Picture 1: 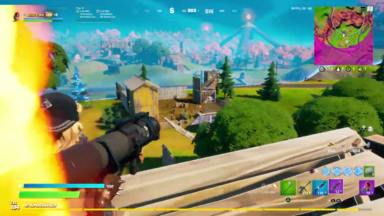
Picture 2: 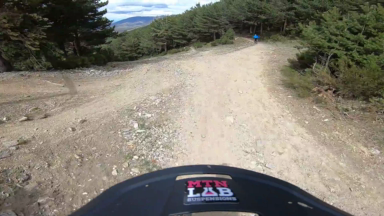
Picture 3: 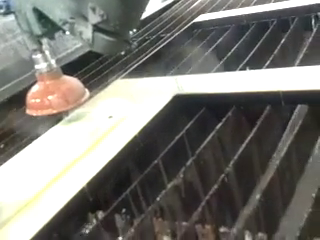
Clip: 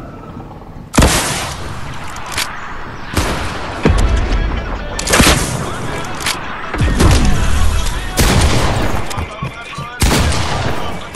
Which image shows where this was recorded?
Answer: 1